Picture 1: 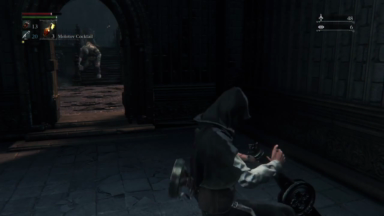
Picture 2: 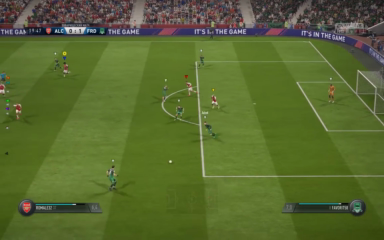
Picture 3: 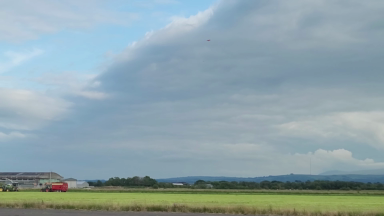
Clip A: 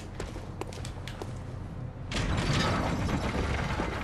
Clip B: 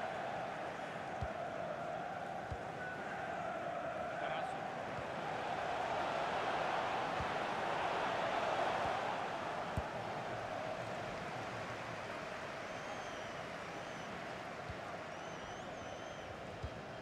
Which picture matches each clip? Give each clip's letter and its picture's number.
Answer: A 1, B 2